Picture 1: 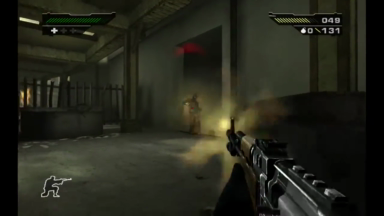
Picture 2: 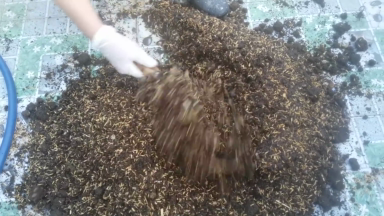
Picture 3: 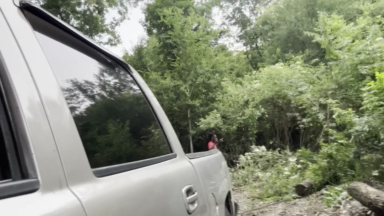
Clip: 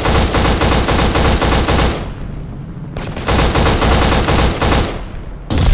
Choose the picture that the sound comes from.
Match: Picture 1